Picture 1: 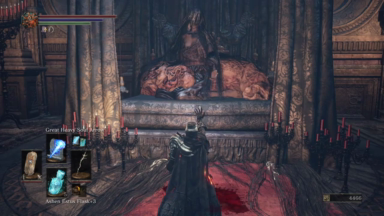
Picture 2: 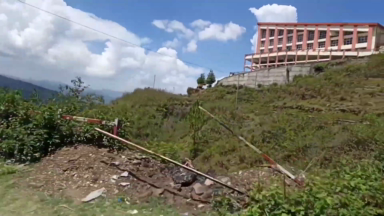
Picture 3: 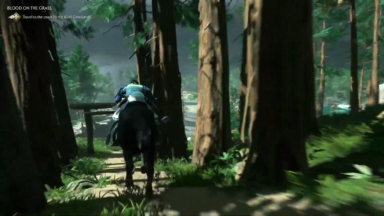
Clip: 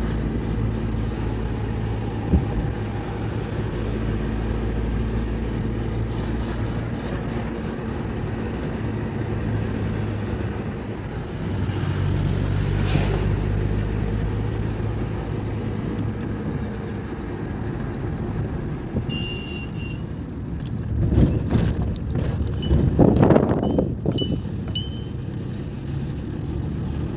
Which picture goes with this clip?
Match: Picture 2